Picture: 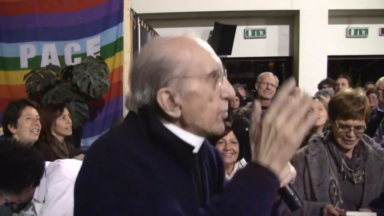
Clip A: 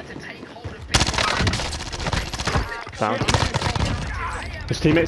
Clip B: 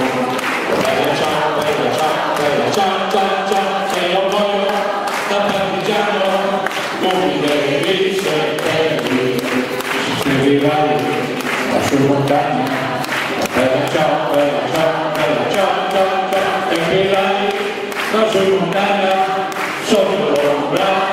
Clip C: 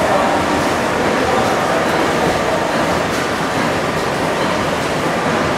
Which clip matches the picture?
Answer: B